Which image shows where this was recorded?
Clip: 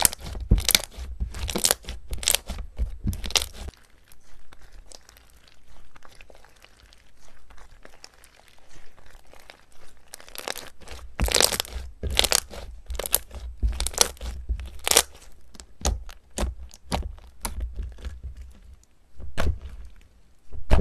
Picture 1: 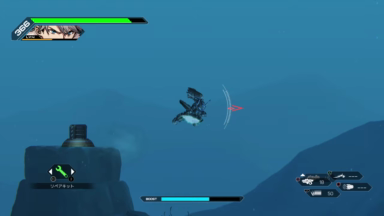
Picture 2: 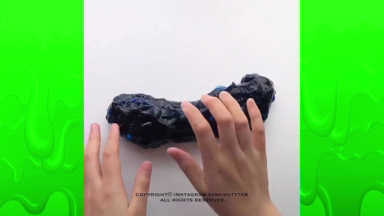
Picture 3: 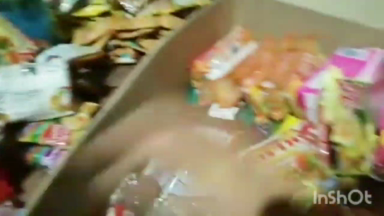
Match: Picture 2